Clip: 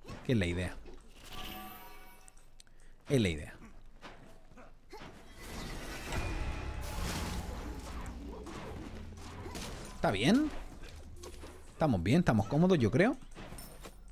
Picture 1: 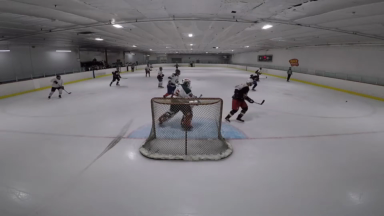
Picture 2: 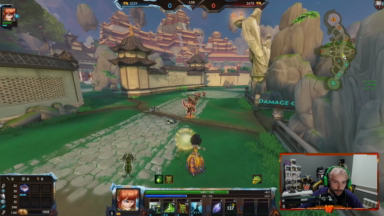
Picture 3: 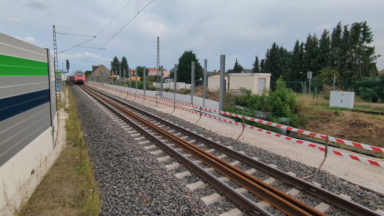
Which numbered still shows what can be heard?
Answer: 2